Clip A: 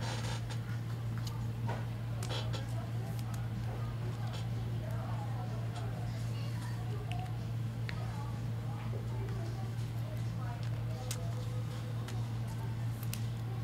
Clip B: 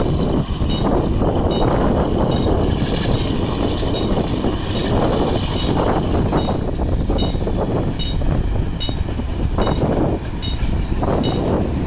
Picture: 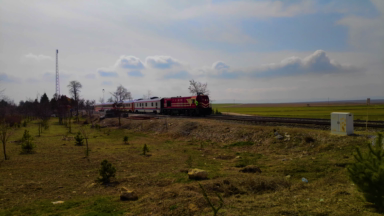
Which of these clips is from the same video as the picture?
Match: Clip B